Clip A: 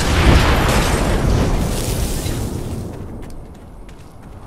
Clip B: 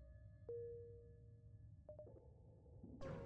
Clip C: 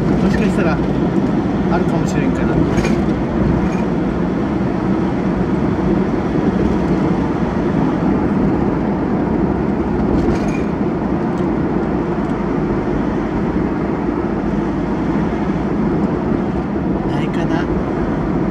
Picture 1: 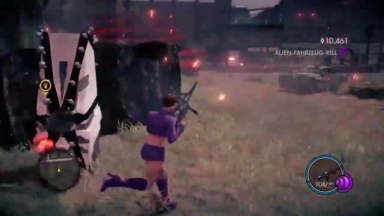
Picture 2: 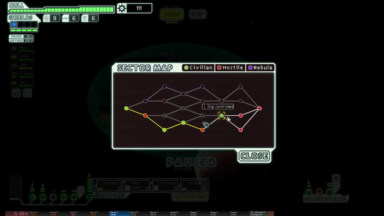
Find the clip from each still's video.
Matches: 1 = A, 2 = B